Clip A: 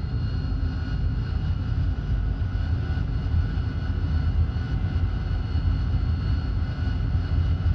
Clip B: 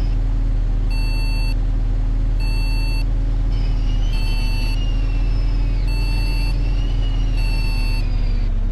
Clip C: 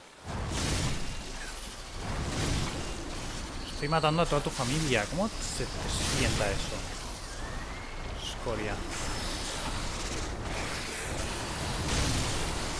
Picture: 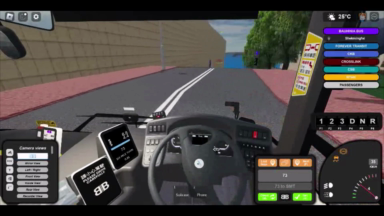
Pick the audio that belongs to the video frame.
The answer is B